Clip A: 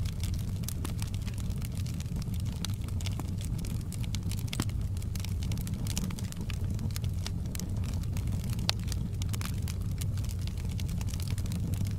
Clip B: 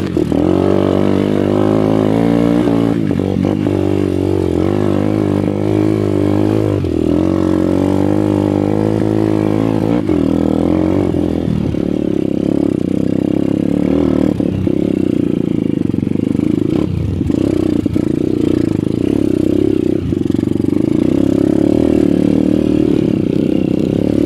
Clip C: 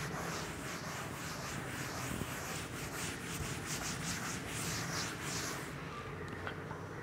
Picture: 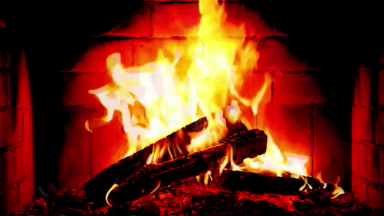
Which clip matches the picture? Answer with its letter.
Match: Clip A